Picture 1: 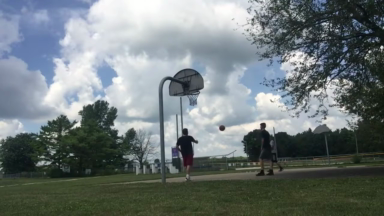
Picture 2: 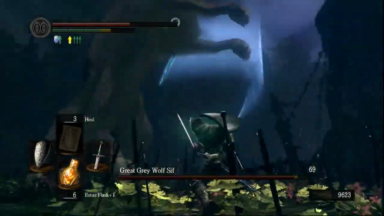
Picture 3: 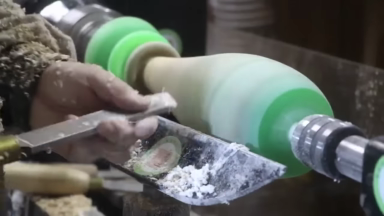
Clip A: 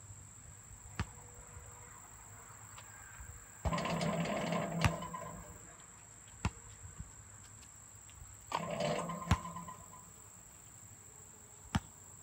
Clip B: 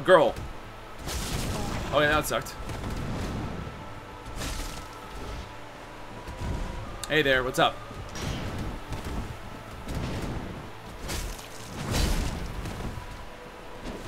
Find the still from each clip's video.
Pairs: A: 1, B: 2